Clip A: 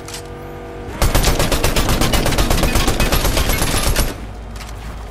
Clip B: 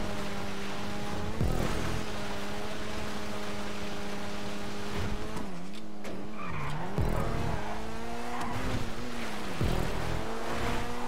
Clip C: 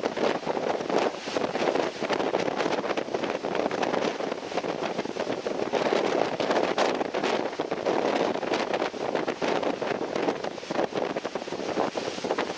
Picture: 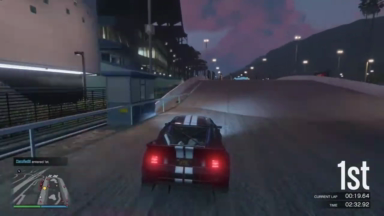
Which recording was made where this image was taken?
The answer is B